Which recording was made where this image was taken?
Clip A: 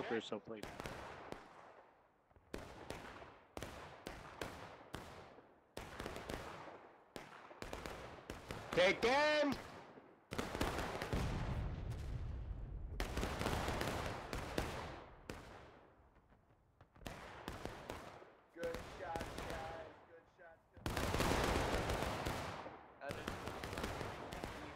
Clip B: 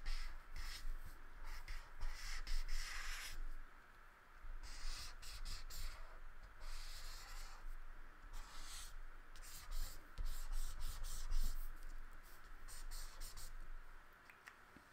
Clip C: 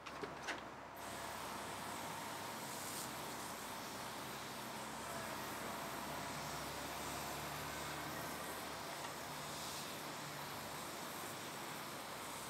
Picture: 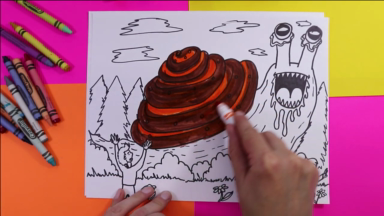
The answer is B